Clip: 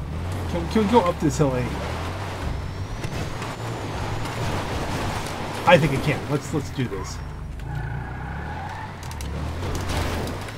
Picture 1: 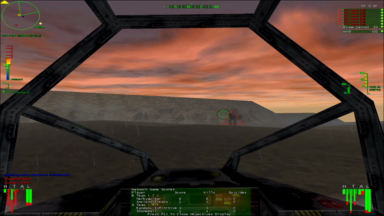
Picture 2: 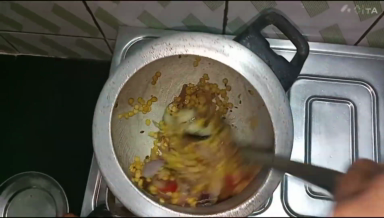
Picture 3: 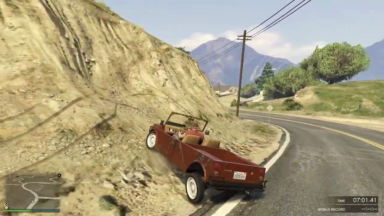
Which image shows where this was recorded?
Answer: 3